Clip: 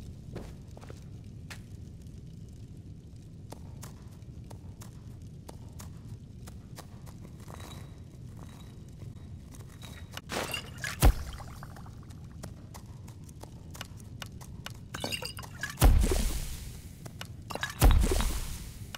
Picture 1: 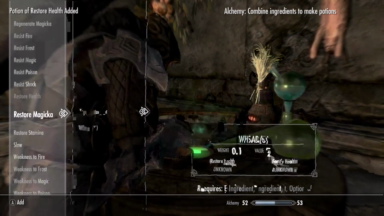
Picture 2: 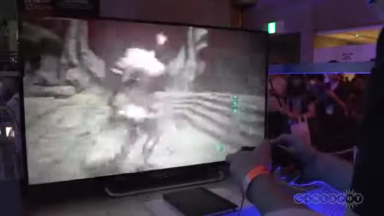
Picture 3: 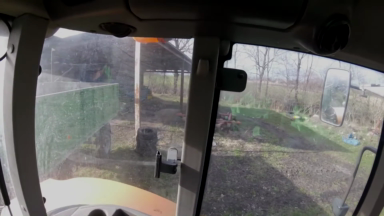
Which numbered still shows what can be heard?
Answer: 1